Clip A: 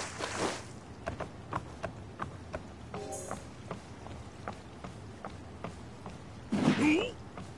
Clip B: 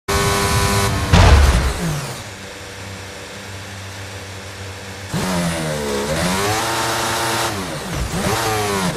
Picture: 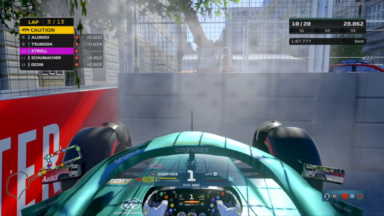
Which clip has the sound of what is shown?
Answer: B